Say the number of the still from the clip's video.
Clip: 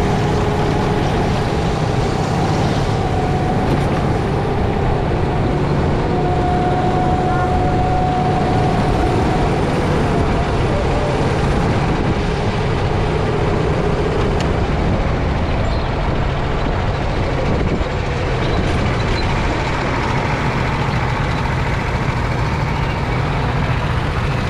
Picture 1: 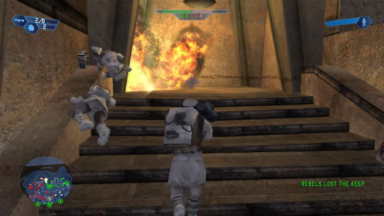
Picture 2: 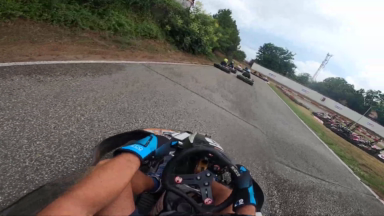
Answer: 2